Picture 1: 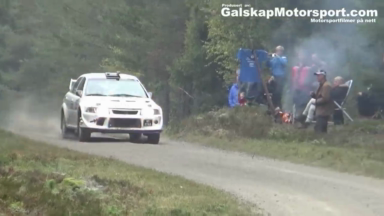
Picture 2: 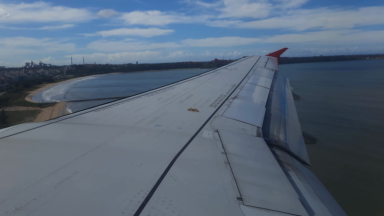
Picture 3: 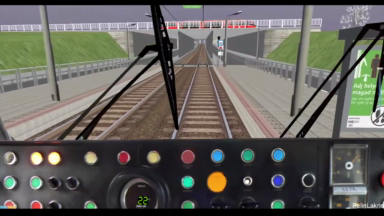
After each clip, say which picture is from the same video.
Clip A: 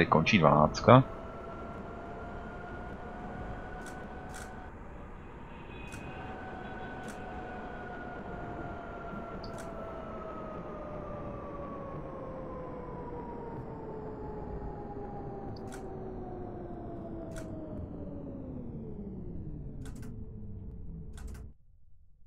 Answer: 3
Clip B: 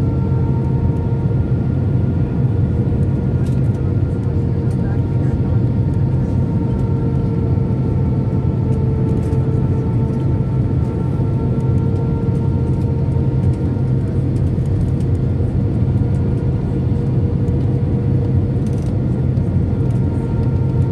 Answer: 2